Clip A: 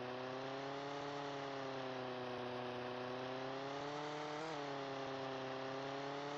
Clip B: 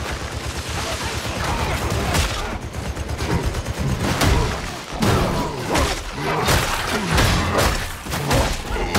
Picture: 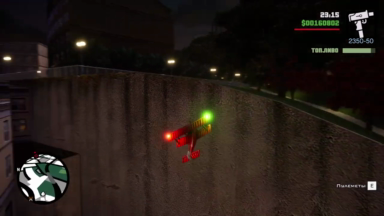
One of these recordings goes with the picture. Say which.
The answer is A